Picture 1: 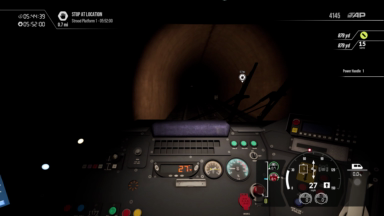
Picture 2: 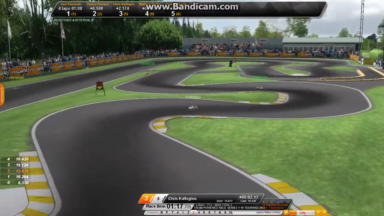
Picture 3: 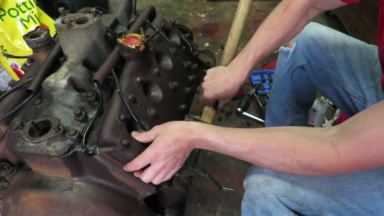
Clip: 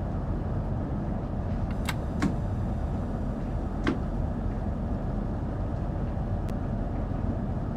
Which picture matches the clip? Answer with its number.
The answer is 1